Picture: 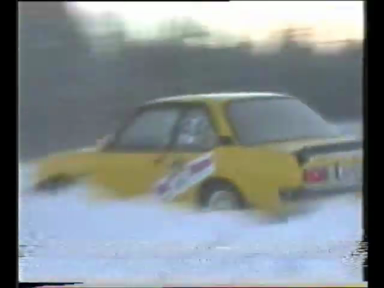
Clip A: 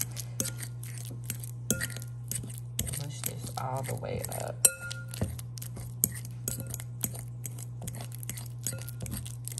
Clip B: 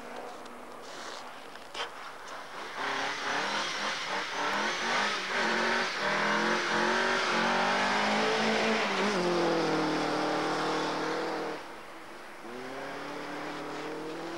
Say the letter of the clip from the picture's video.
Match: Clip B